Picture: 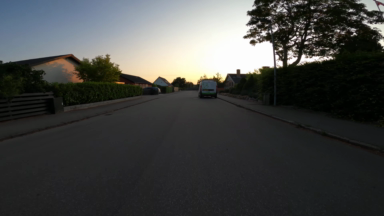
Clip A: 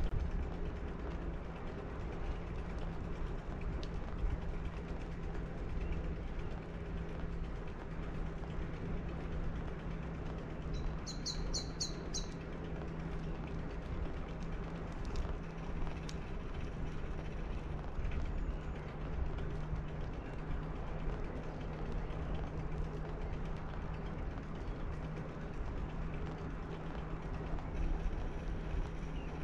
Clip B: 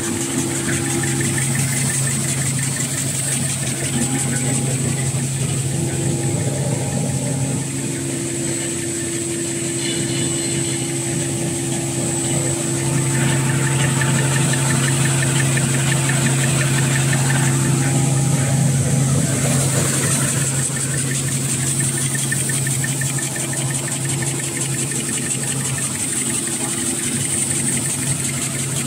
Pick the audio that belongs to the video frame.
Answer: A